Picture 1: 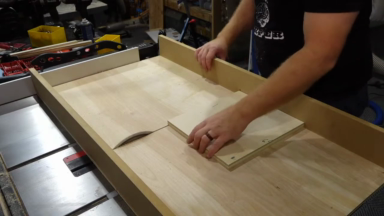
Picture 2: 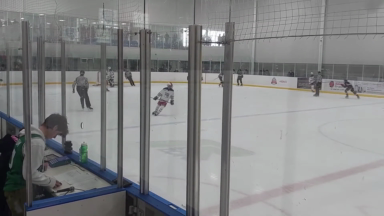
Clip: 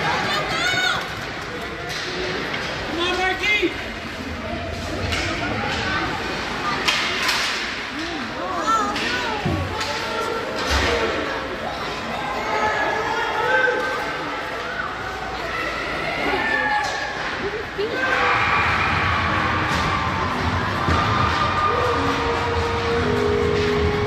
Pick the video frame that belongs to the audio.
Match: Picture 2